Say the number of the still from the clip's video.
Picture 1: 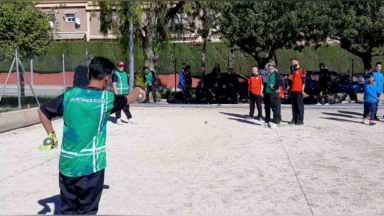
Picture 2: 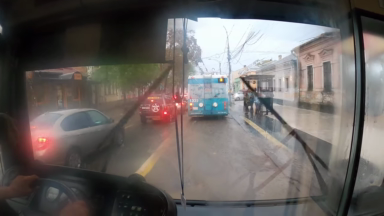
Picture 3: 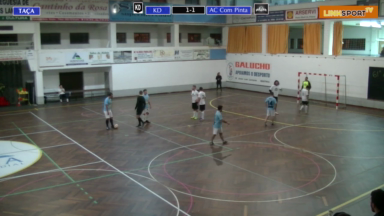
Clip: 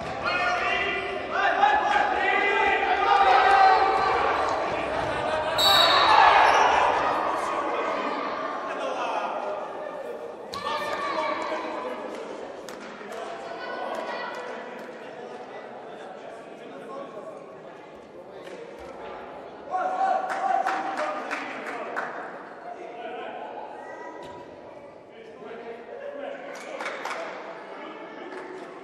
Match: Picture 3